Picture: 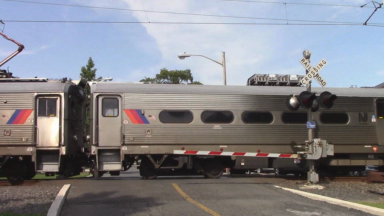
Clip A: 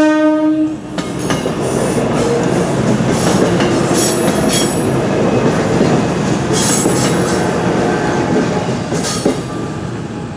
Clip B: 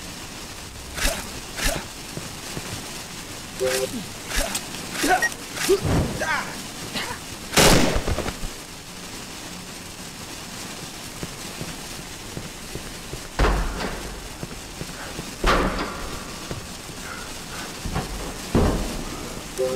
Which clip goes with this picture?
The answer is A